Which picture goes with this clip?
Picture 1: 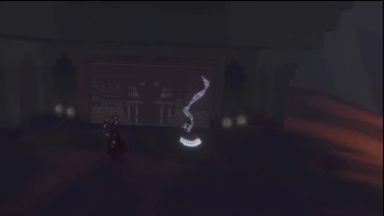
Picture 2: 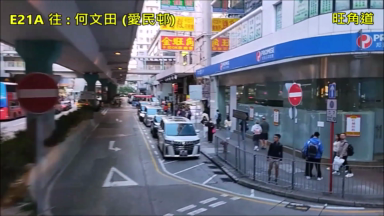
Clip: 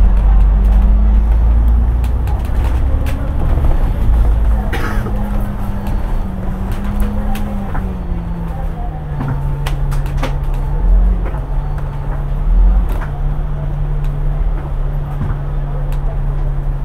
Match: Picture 2